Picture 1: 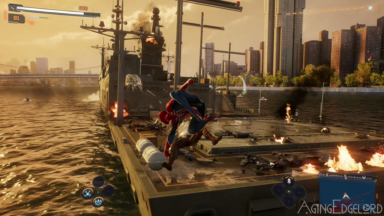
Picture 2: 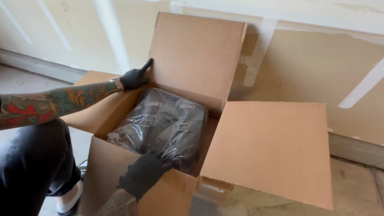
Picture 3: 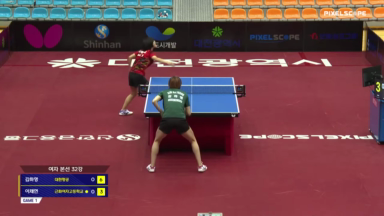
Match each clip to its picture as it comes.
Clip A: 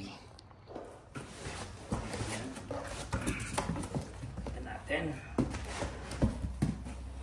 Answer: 2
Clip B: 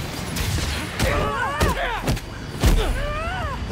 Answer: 1